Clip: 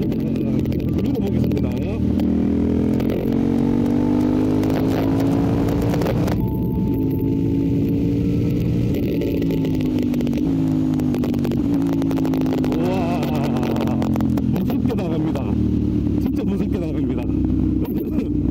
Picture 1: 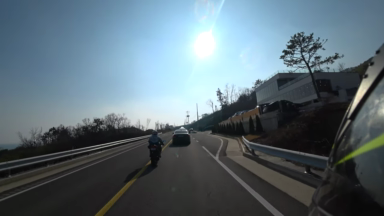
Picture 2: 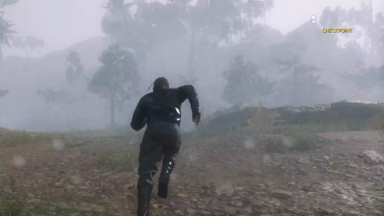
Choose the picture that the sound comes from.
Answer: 1